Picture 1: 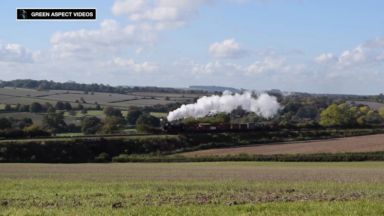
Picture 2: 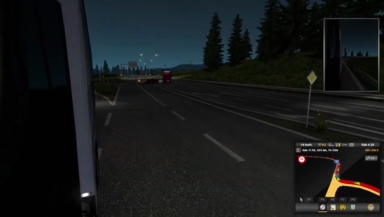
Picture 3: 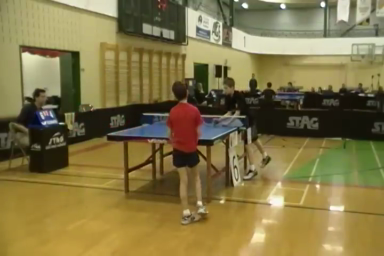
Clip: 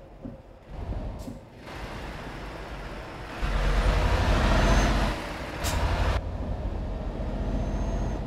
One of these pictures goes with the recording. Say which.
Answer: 2